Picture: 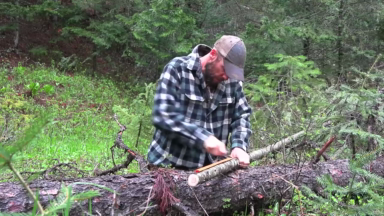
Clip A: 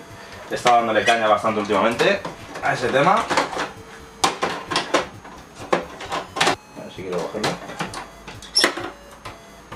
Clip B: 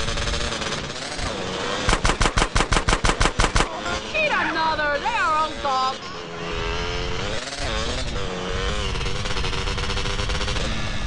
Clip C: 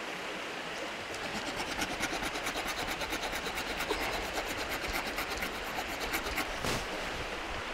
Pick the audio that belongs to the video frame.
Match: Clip C